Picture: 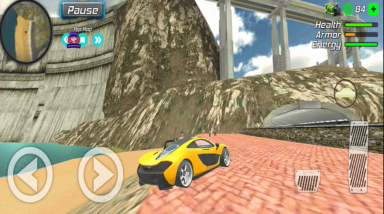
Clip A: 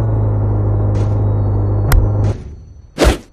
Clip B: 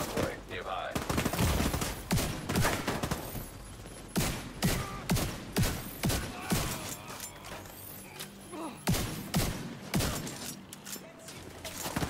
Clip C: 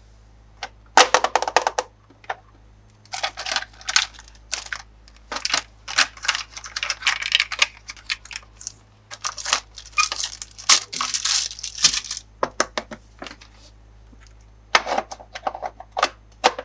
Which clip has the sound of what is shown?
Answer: A